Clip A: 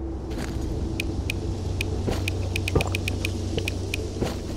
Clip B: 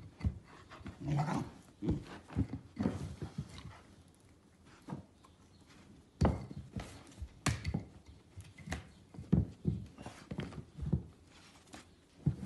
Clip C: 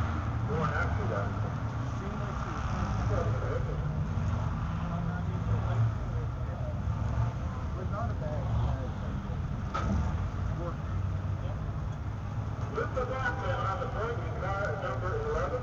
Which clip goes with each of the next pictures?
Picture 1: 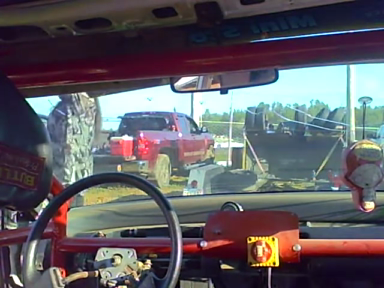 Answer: C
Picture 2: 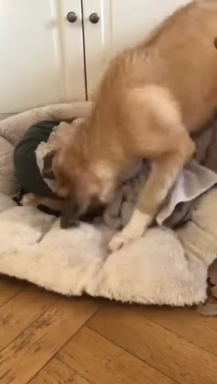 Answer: B